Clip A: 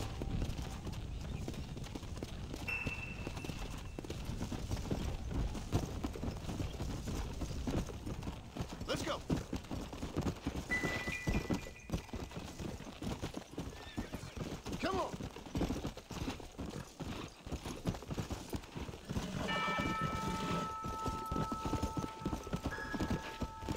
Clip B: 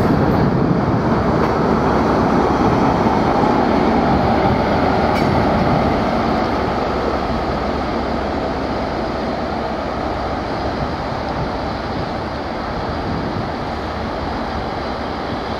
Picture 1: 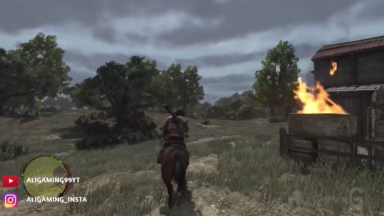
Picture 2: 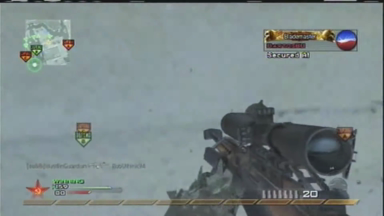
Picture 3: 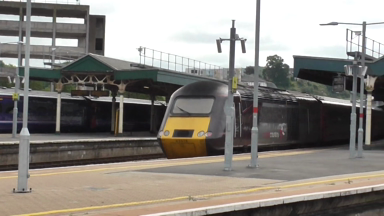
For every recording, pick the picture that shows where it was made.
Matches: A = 1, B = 3